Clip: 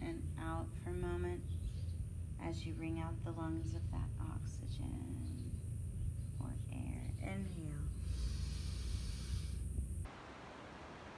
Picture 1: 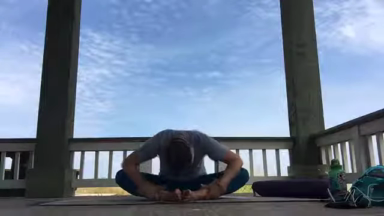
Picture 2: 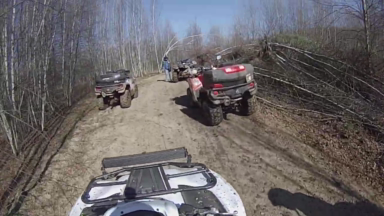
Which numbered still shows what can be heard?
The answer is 1